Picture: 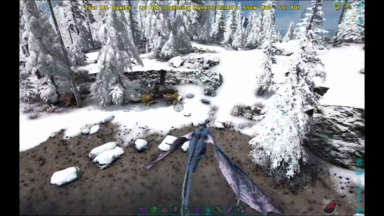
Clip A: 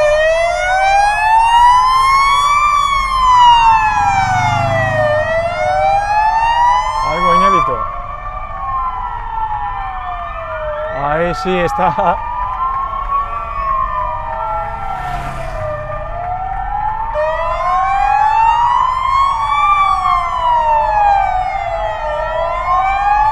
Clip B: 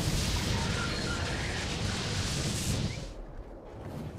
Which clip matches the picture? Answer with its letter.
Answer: B